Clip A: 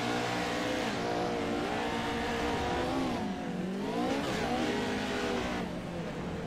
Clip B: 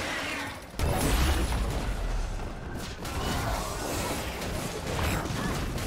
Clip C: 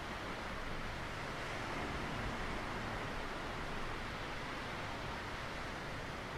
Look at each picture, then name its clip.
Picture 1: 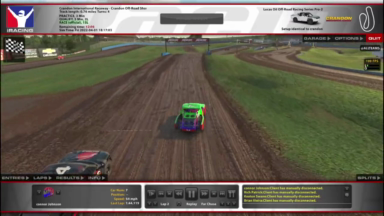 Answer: A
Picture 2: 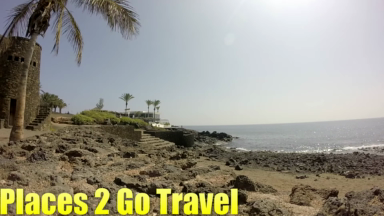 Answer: C